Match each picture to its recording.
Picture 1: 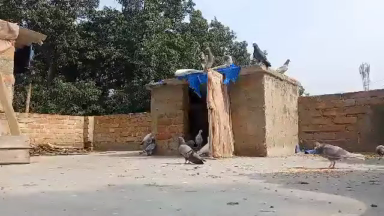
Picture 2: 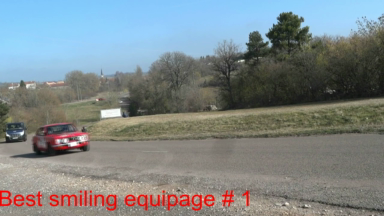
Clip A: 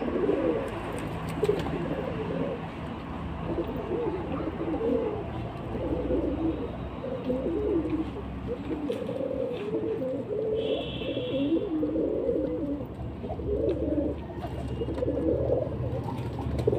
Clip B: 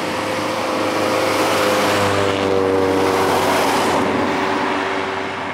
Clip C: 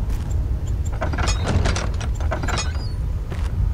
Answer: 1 A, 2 B